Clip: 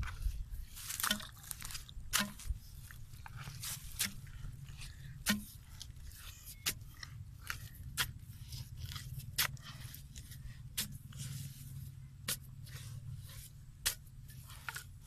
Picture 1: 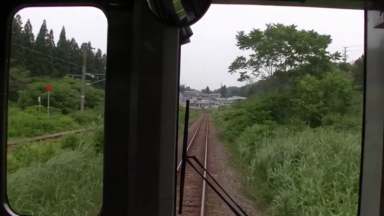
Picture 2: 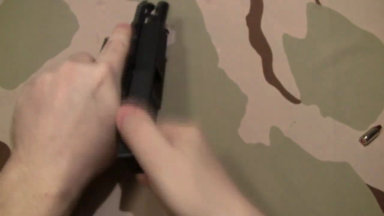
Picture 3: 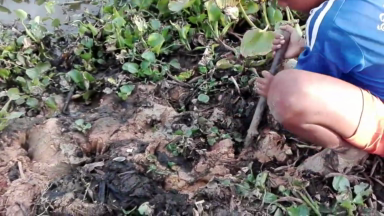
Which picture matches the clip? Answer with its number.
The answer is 3